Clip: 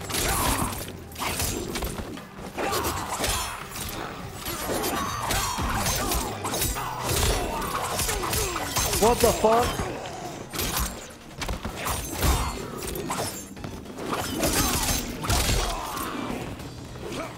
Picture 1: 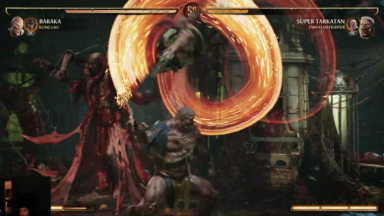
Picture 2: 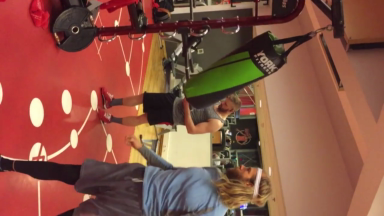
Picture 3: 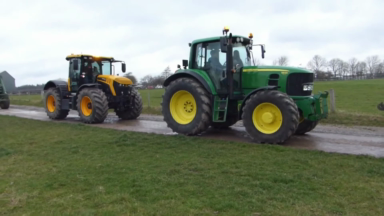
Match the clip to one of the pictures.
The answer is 1